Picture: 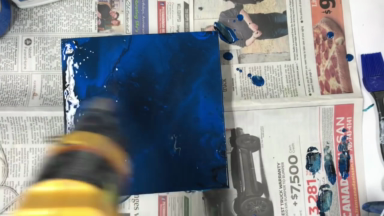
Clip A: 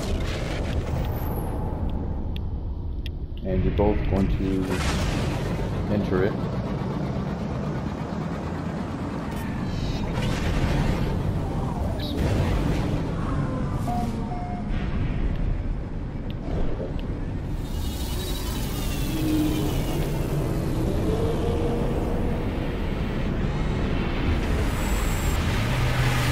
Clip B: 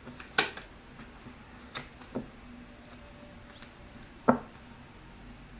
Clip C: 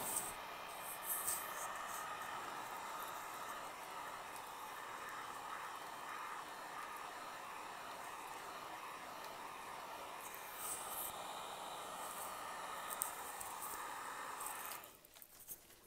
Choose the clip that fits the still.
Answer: C